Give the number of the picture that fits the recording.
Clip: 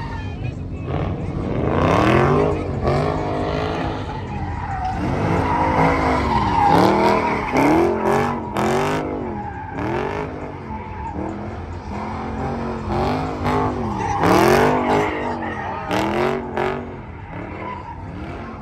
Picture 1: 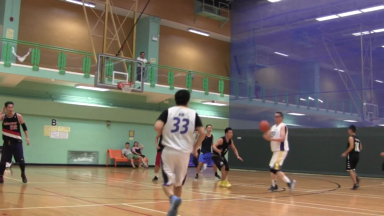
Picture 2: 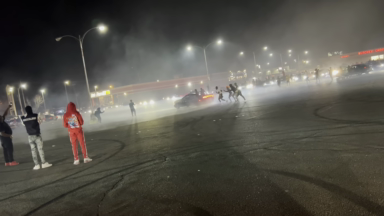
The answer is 2